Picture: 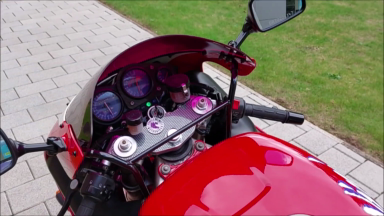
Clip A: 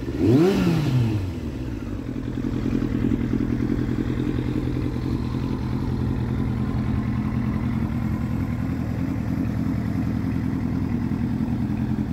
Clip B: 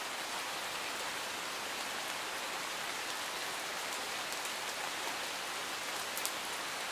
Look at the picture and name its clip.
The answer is A